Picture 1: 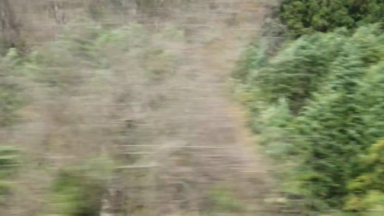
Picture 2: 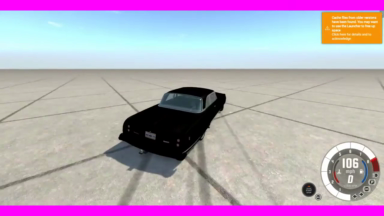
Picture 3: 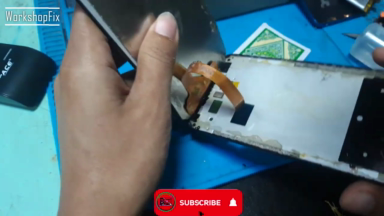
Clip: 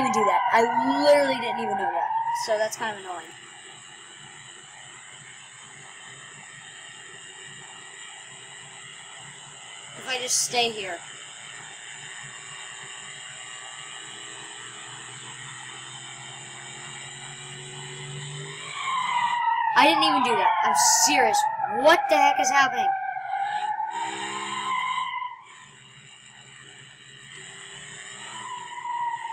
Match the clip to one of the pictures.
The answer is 2